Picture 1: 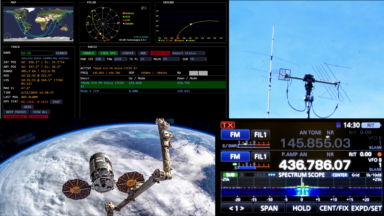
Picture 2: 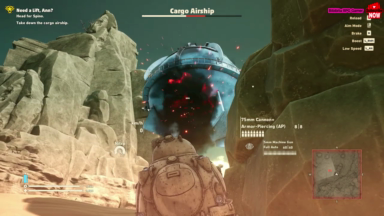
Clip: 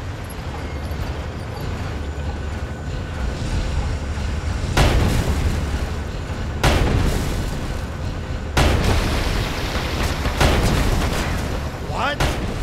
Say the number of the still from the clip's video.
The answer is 2